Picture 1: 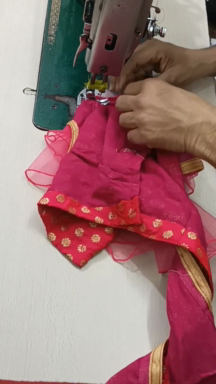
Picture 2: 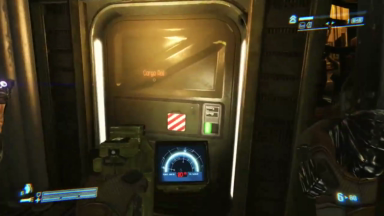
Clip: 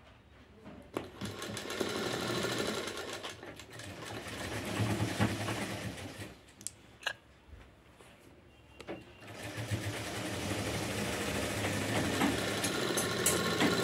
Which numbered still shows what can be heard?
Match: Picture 1